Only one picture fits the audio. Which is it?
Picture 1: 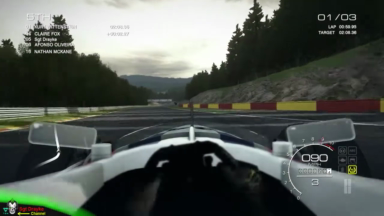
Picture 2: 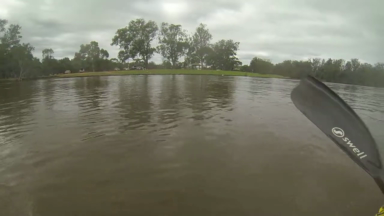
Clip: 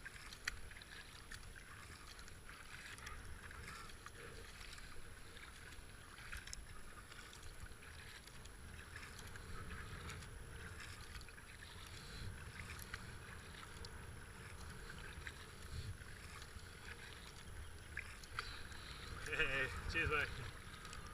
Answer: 2